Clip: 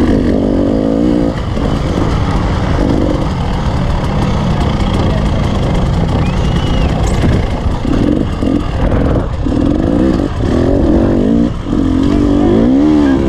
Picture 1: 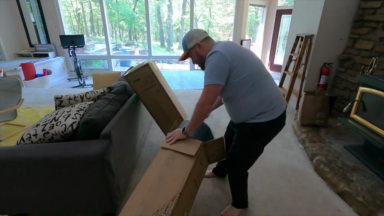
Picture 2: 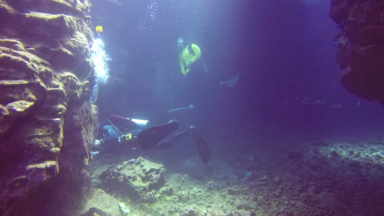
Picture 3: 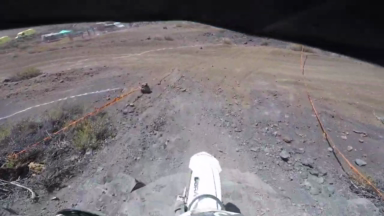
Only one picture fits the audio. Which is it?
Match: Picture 3